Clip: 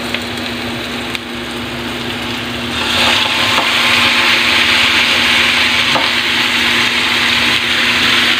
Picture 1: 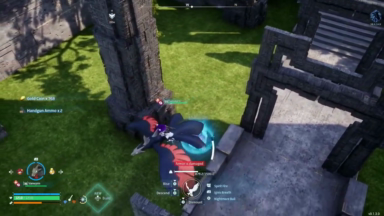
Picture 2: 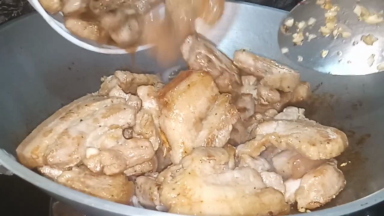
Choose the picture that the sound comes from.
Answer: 2